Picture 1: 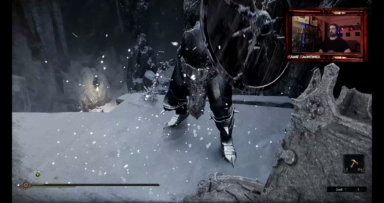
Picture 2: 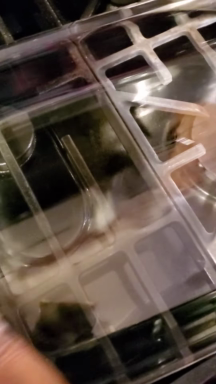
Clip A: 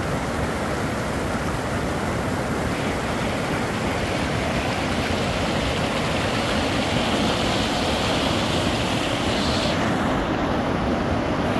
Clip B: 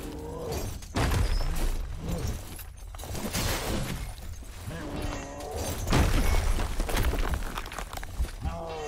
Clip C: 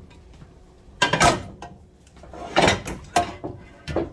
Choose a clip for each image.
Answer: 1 B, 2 C